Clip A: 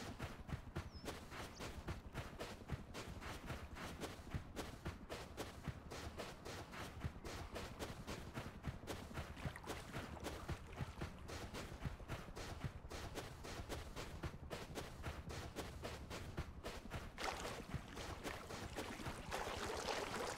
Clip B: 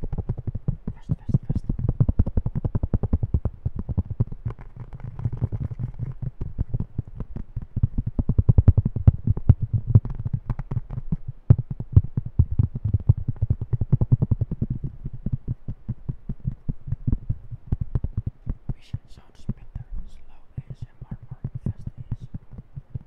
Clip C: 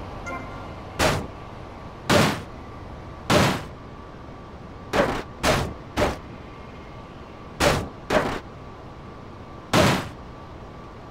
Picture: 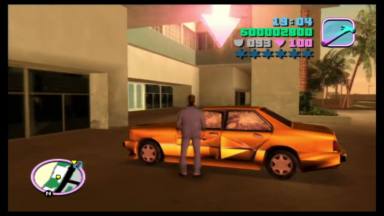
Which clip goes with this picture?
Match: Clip C